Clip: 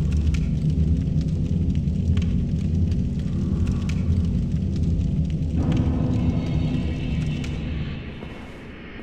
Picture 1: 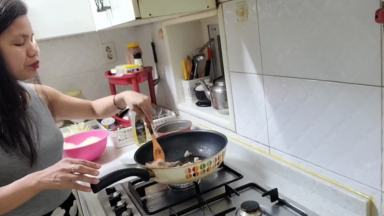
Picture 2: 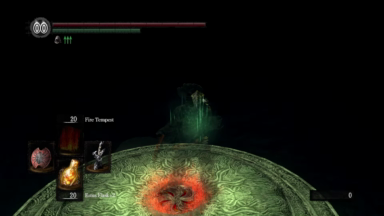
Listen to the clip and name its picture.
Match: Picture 2